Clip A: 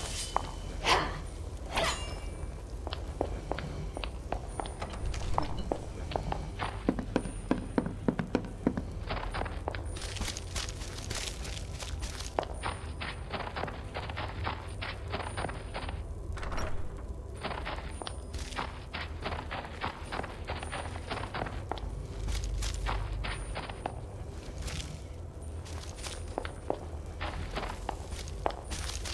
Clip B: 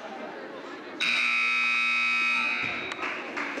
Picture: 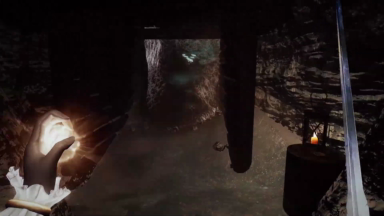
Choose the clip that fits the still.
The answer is A